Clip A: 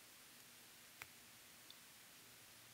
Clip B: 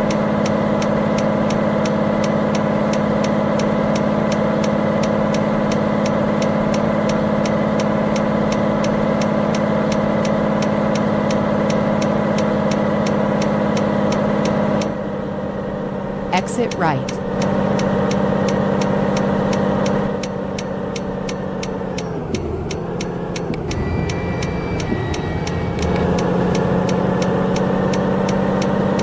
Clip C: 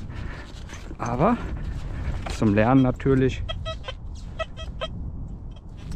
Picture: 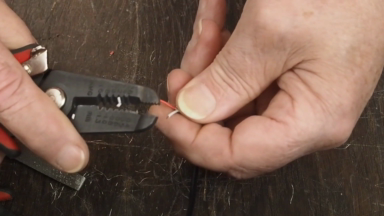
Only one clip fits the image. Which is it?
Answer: A